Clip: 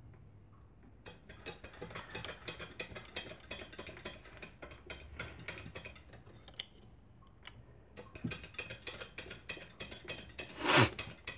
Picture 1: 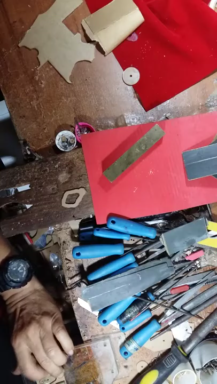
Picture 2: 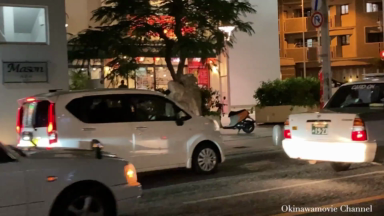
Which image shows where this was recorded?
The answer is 1